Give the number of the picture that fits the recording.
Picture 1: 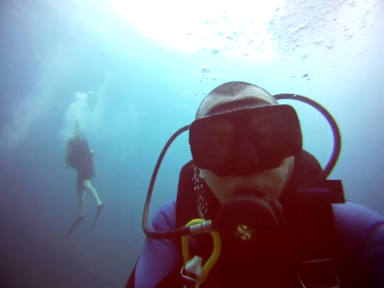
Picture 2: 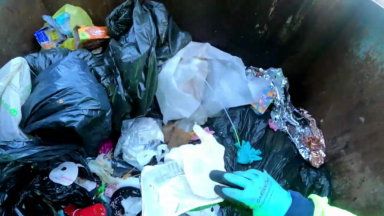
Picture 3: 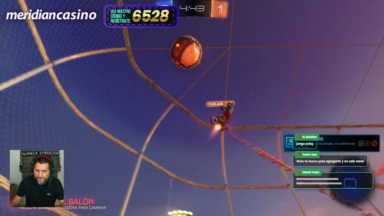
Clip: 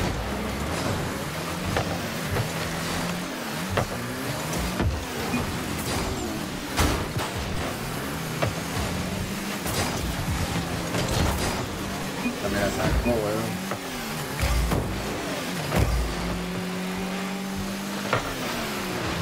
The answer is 3